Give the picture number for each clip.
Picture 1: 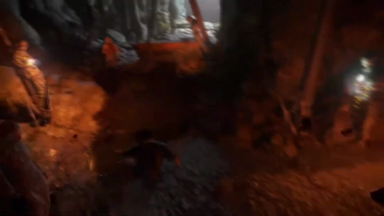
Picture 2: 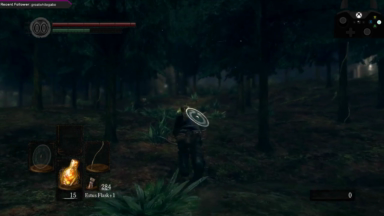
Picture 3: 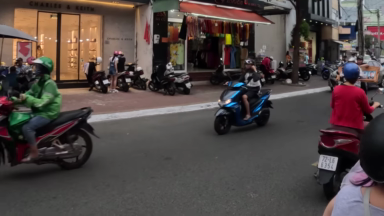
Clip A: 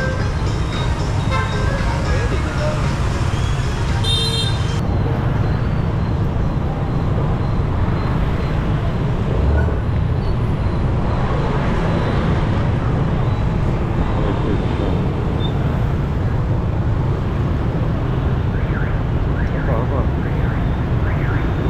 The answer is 3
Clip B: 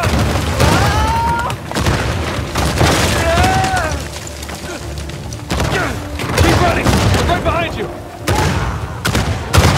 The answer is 1